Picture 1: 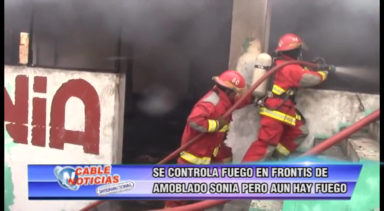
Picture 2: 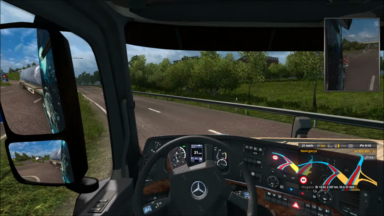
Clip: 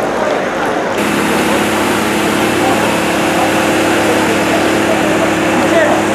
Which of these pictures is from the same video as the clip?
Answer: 1